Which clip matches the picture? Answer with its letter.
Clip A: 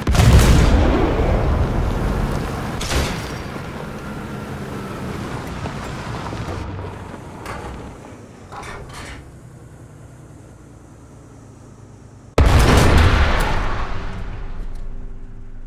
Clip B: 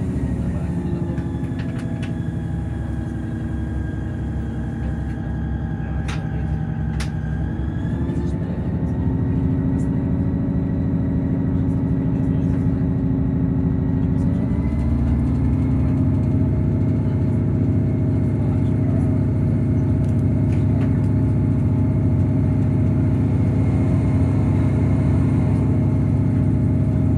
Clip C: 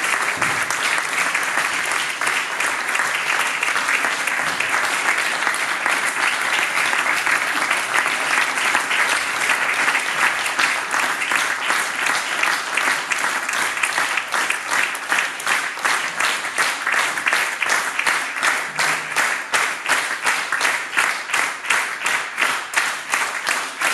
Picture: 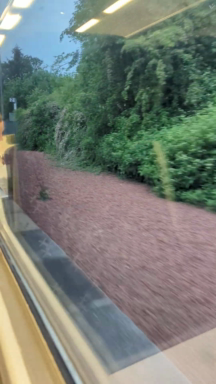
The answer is B